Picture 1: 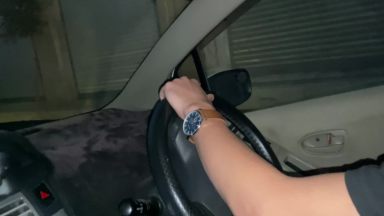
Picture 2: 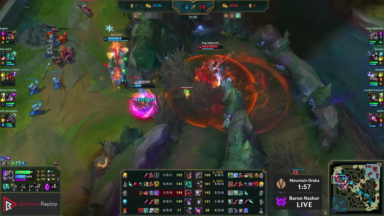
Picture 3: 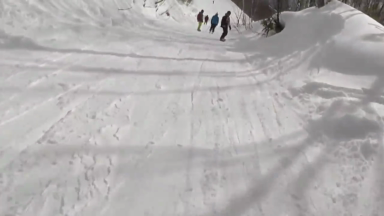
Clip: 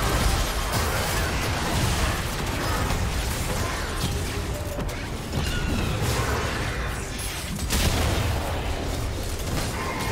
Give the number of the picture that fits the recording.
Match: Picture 2